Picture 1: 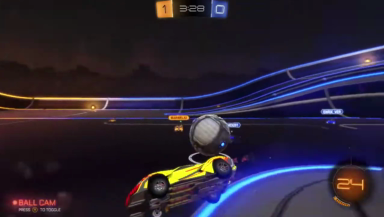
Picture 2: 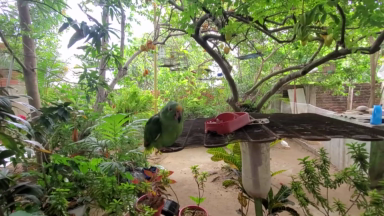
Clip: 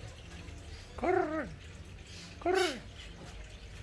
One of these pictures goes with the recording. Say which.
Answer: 2